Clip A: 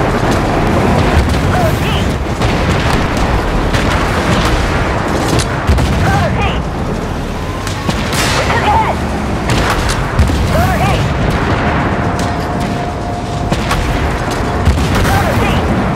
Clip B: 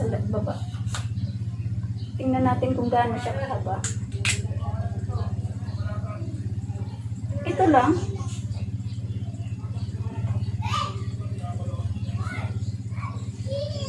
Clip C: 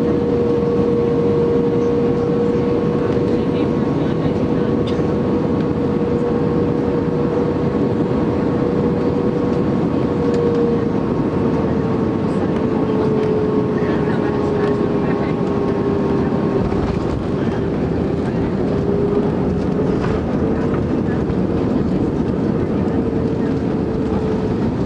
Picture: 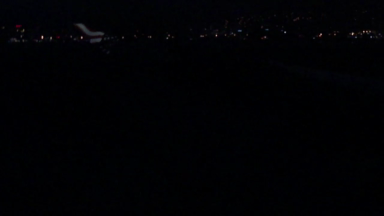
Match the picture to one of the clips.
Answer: C